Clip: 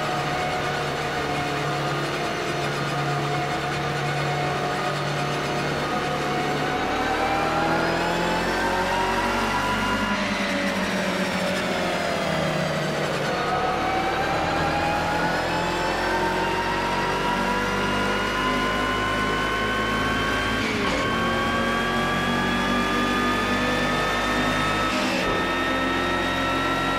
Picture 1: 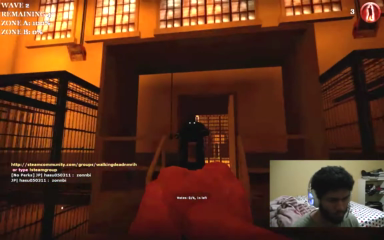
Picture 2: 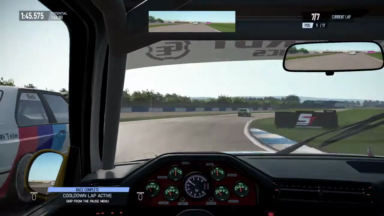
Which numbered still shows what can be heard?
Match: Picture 2